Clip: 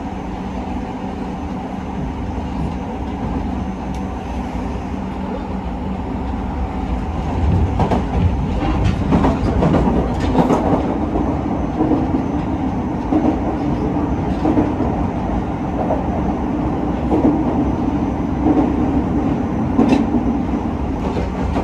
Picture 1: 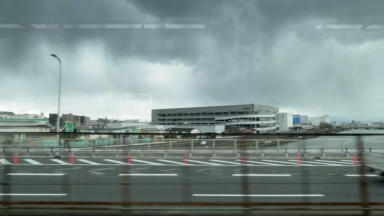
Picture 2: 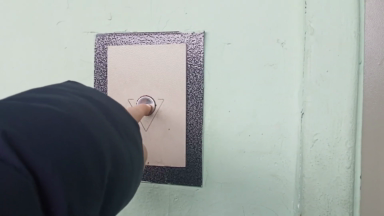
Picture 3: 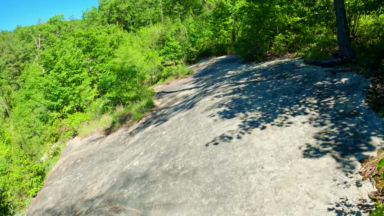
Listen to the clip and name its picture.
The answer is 1